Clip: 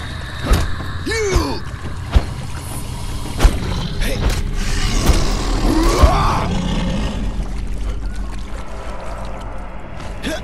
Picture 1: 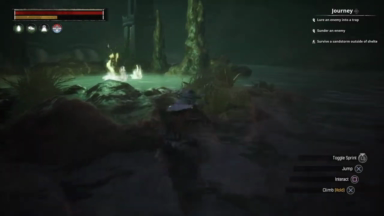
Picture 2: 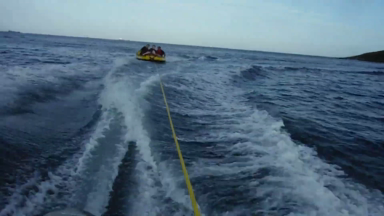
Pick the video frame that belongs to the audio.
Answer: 1